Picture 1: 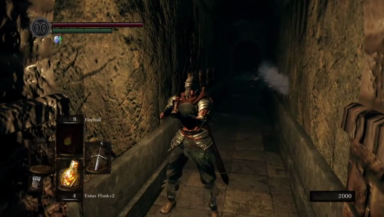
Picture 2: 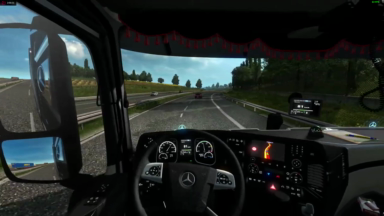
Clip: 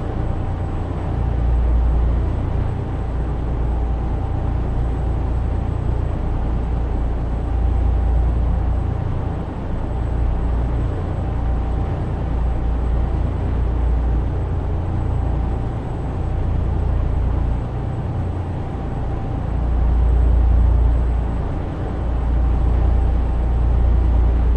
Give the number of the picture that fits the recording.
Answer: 2